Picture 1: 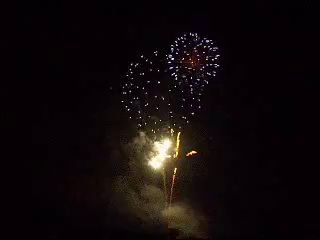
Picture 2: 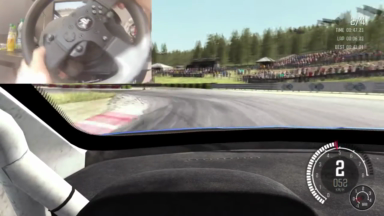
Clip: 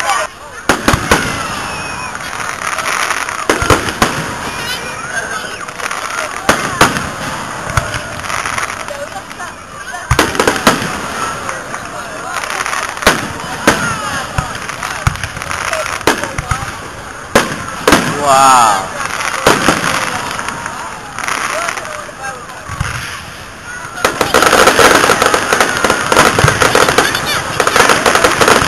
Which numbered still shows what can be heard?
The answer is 1